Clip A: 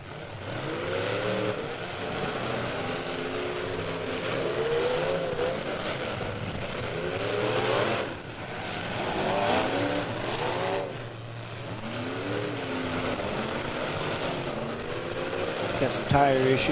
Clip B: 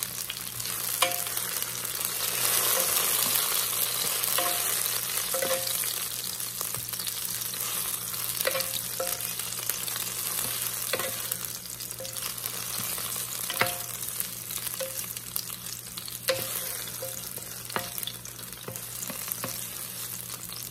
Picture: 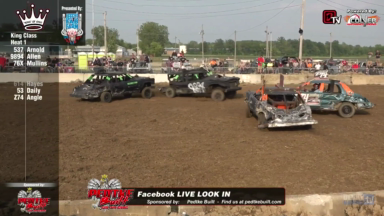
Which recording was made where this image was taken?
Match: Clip A